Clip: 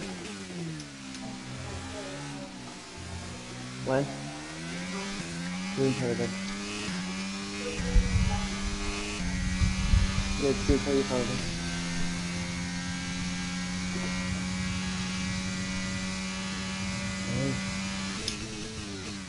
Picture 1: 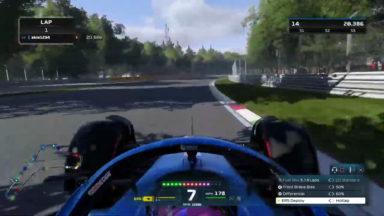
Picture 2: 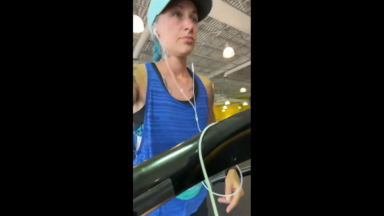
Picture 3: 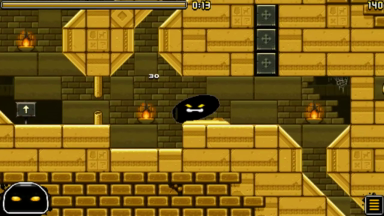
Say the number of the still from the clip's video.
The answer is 1